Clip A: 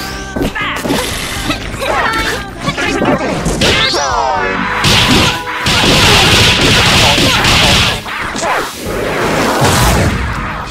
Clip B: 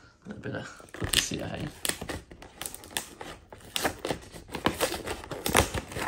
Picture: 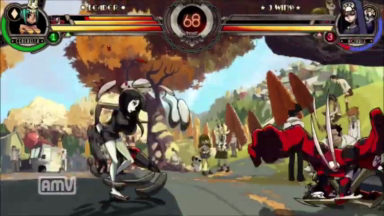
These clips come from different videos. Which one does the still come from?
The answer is A